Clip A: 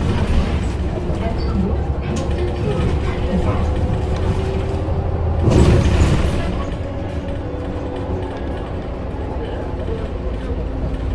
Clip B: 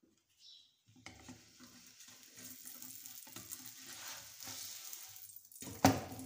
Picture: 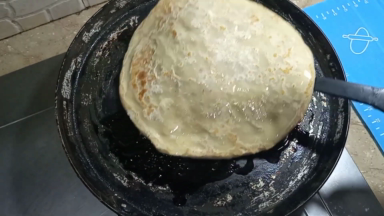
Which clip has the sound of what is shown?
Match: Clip B